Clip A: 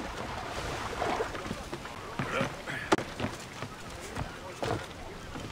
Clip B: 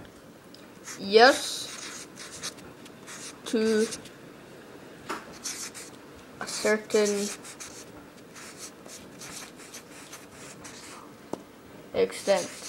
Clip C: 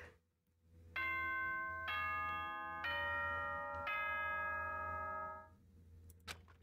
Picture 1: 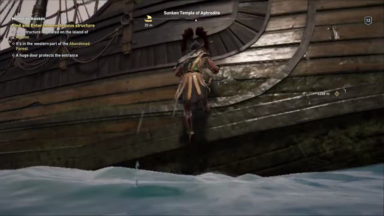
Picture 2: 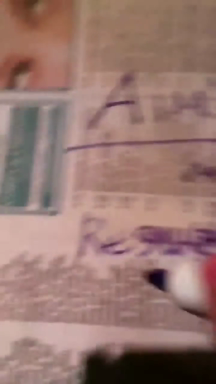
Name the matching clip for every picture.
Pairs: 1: A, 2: B